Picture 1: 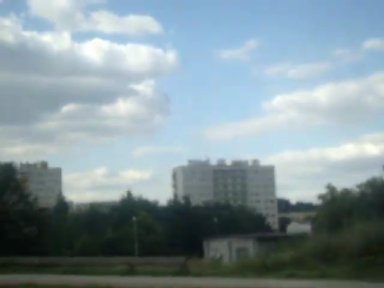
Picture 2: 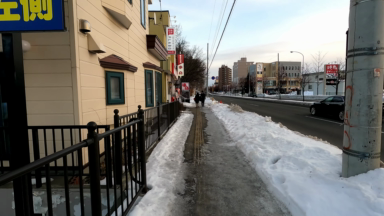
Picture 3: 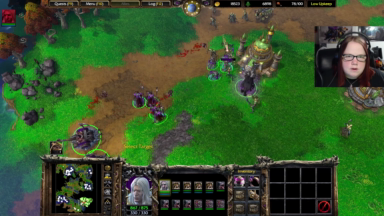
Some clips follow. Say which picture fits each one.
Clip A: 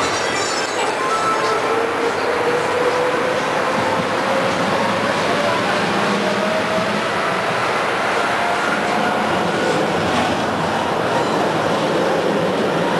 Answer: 1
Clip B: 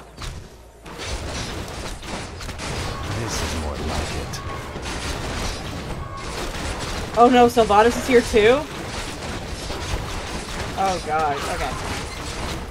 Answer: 3